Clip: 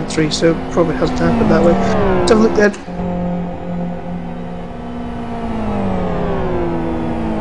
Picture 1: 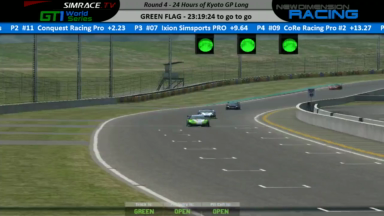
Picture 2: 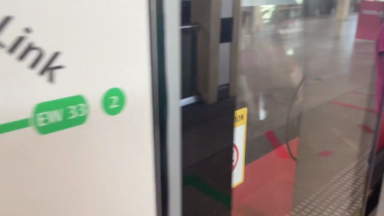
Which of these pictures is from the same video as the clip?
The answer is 1